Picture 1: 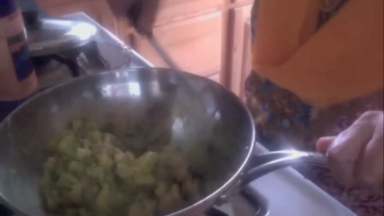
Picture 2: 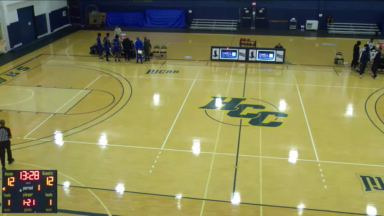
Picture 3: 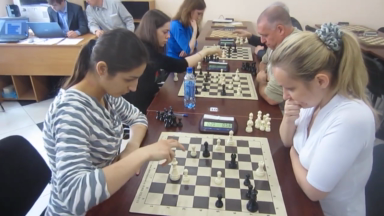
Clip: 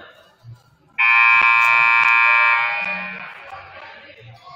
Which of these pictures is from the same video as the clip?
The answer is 2